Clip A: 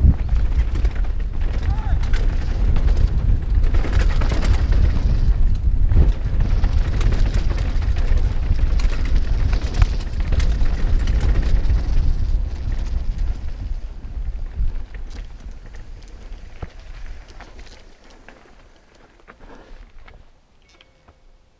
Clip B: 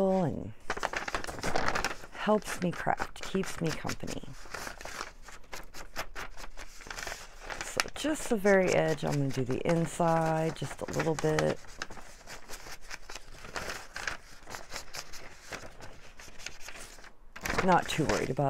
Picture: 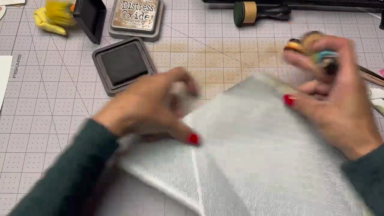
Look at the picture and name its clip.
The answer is B